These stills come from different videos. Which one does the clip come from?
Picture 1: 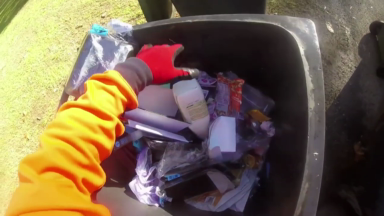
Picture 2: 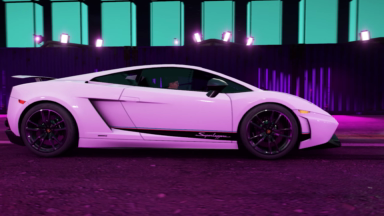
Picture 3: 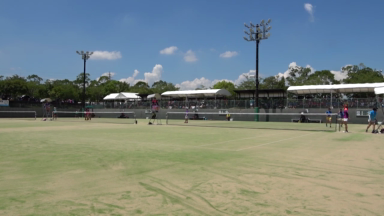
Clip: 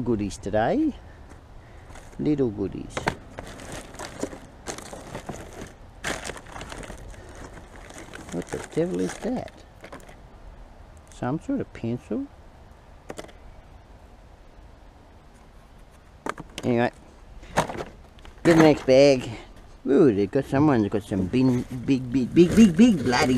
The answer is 1